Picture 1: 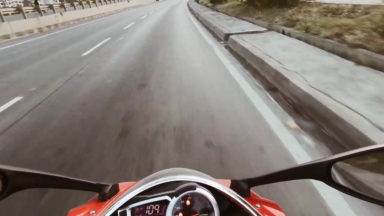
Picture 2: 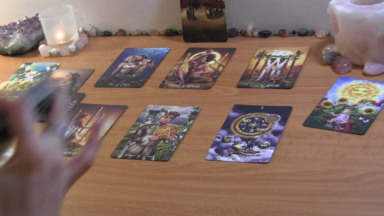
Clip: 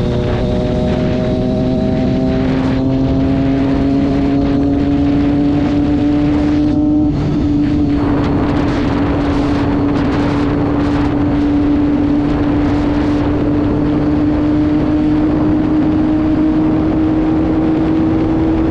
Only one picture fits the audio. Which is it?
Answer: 1